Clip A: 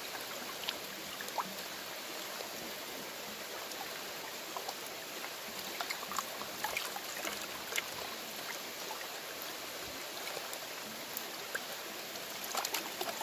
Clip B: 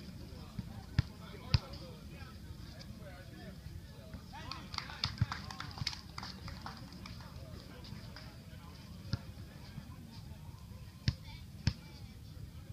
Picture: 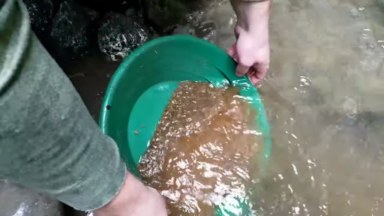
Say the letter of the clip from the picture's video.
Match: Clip A